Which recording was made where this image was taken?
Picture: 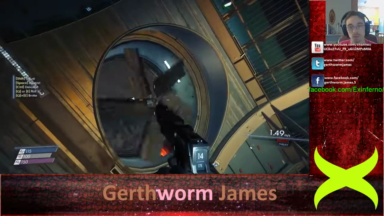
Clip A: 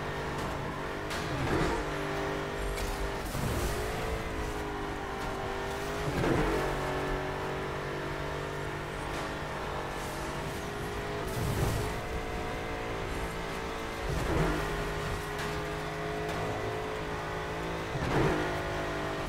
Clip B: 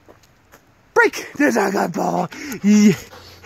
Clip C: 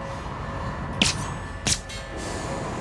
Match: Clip C